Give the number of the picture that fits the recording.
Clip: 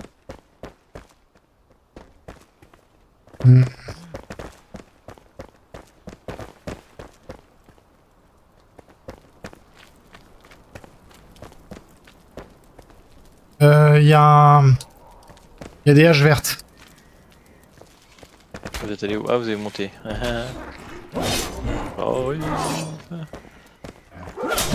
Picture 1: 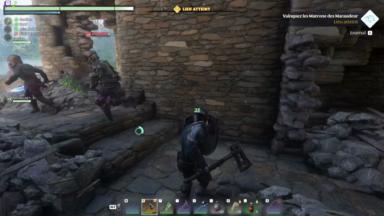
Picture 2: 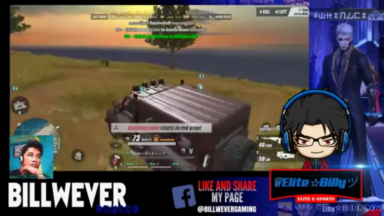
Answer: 1